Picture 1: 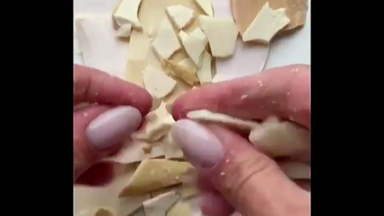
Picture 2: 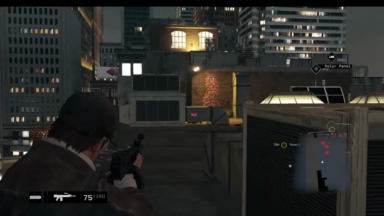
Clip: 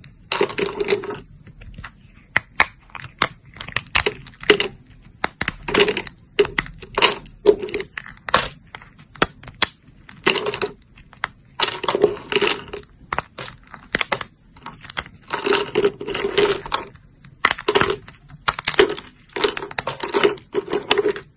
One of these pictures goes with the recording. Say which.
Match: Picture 1